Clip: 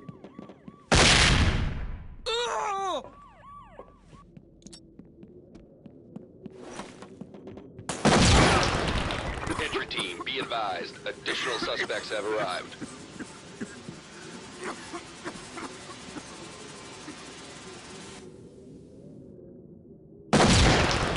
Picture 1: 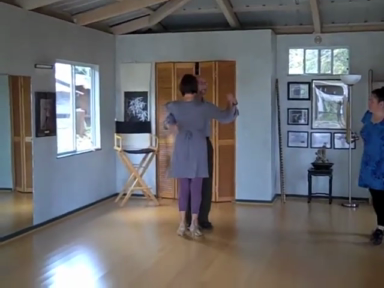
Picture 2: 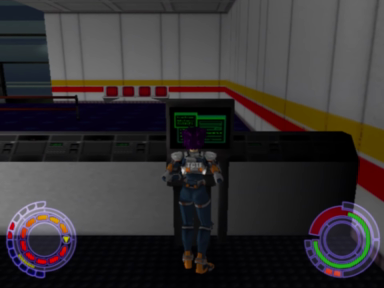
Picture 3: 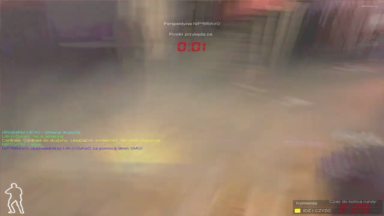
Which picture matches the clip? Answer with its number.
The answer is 3